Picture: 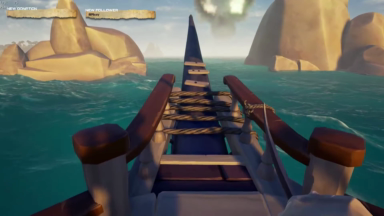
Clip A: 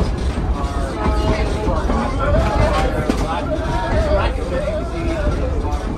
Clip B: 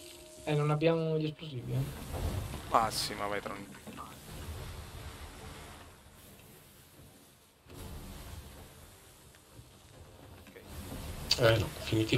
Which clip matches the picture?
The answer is B